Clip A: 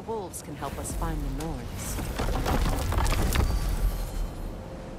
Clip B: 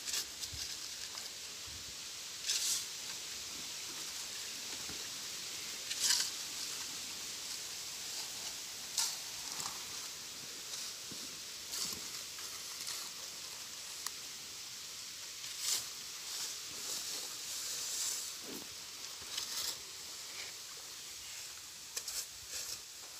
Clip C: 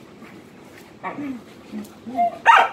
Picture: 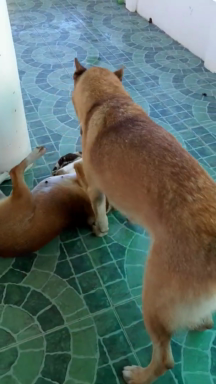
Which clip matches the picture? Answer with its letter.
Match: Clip C